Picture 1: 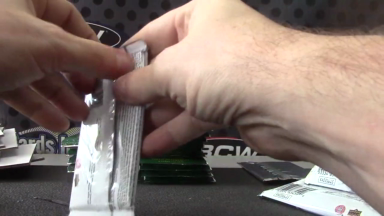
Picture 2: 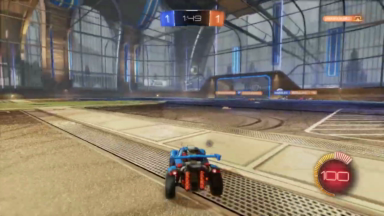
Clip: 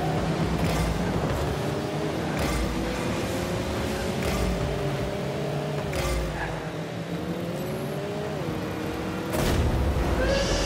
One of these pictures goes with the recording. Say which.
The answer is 2